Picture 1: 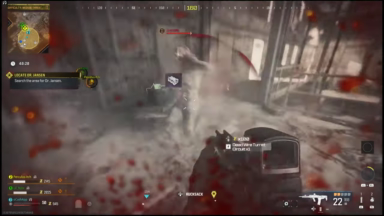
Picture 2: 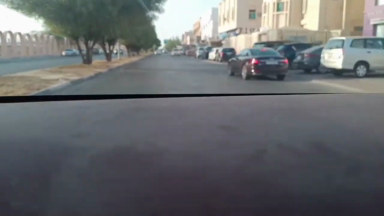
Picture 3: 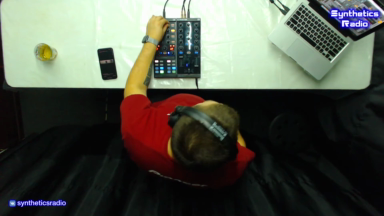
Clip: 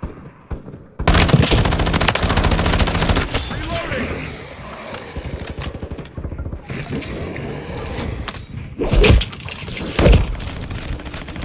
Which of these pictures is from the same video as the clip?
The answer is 1